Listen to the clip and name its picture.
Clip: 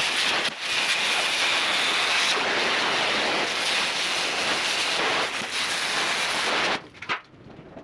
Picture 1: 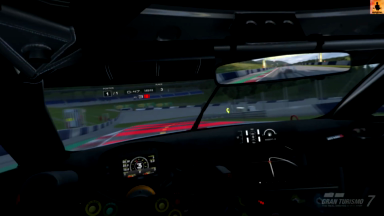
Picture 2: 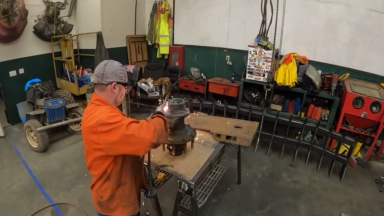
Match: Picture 2